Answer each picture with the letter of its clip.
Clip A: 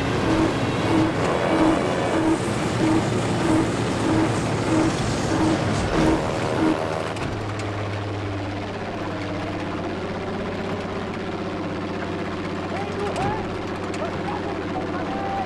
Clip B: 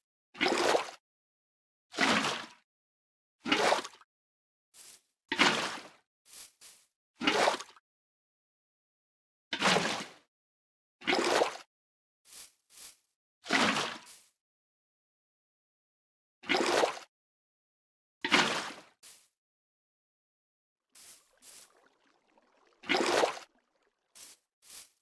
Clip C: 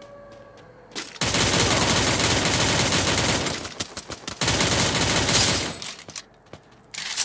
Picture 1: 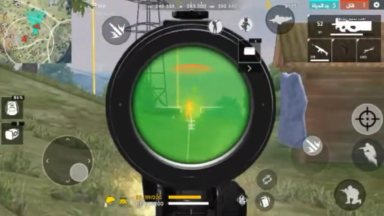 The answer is C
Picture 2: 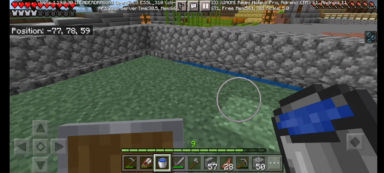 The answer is B